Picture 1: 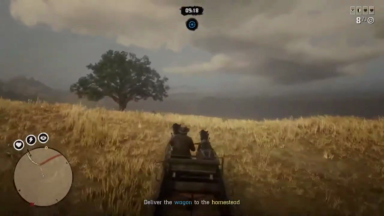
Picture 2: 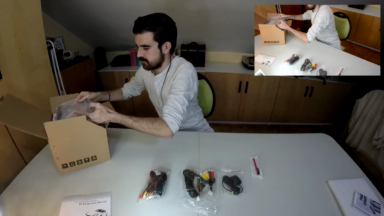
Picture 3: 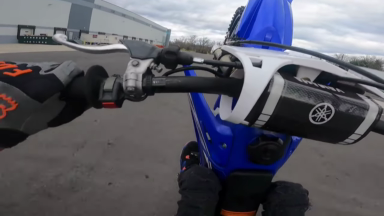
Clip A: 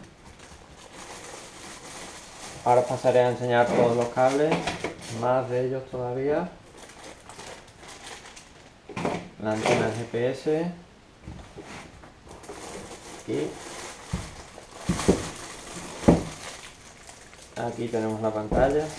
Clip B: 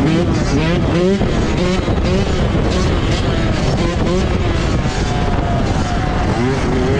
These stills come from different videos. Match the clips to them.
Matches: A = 2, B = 3